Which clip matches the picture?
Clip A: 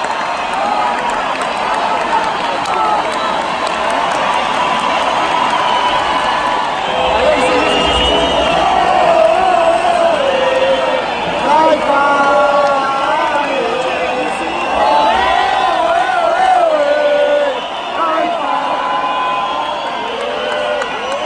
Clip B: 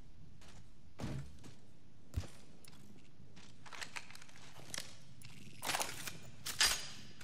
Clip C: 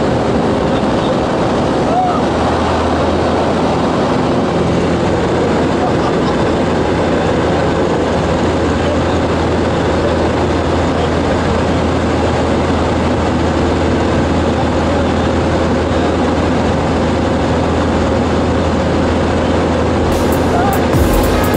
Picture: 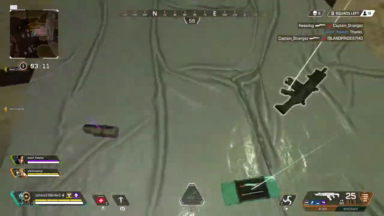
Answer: B